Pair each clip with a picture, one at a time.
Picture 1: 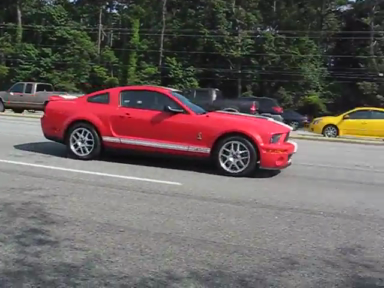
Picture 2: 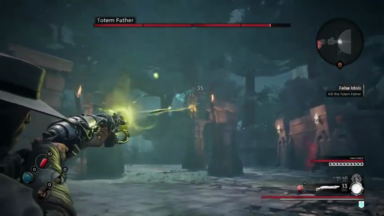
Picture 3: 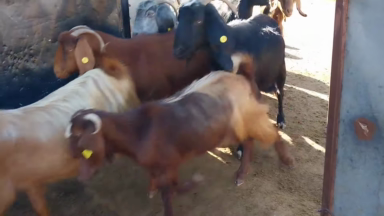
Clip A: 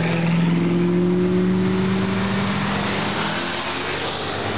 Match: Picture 1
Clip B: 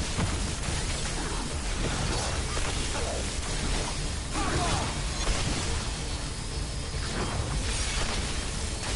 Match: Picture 2